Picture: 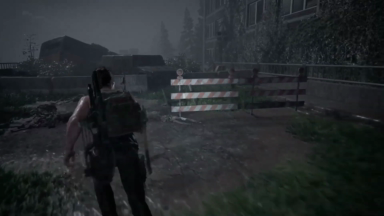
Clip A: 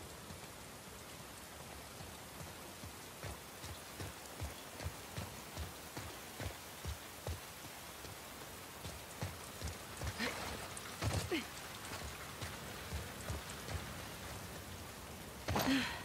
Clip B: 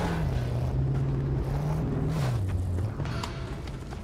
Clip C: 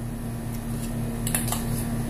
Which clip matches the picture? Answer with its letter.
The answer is A